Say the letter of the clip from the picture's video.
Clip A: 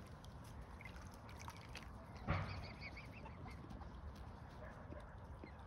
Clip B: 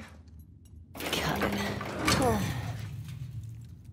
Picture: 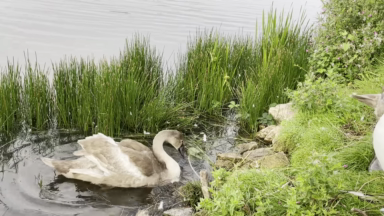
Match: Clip A